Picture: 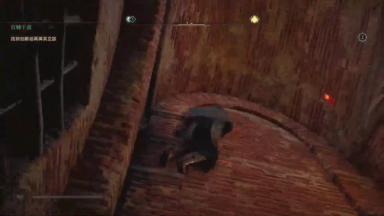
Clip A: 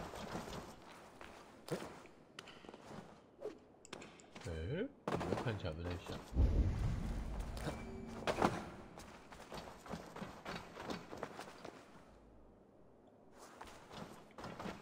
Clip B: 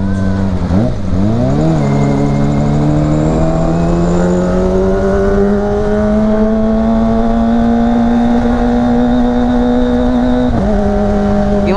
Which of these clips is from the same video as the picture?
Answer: A